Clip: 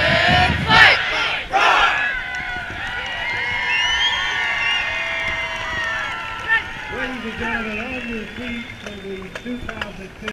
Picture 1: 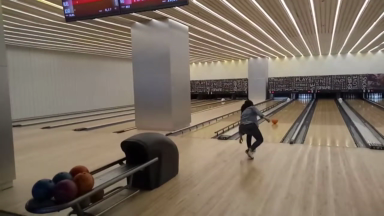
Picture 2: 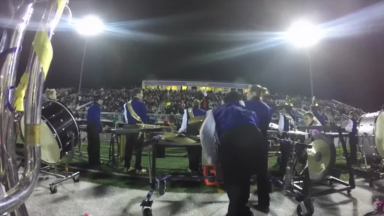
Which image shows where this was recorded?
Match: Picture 2